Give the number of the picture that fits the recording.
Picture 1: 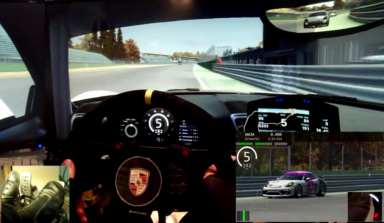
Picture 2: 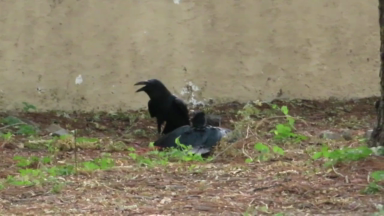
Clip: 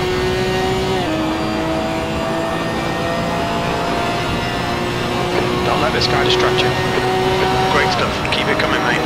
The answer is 1